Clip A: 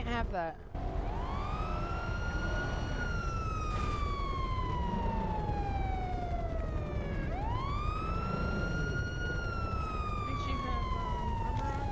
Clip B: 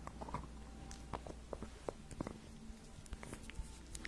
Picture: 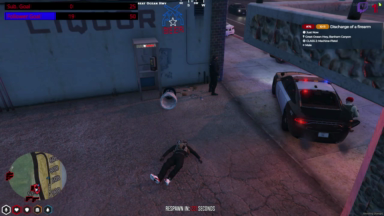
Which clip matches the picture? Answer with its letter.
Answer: A